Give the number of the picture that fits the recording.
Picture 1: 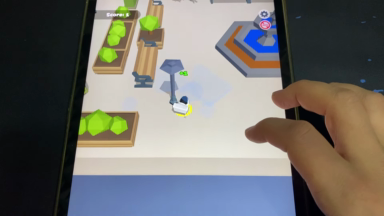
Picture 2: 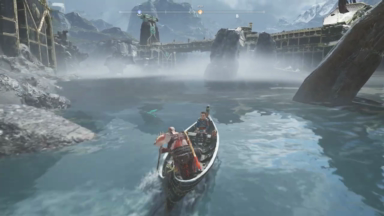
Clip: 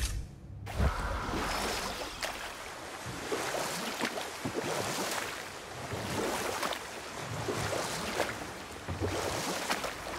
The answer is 2